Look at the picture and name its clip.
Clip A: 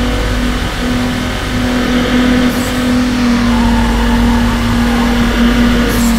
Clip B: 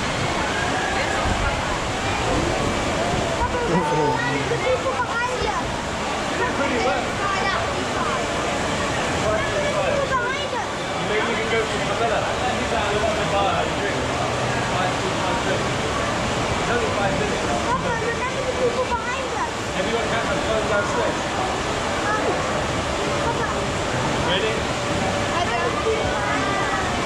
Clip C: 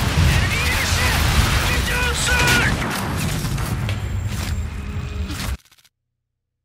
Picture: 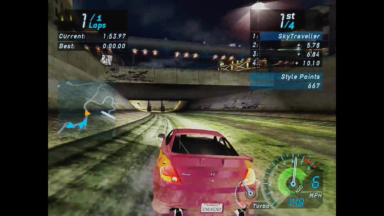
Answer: A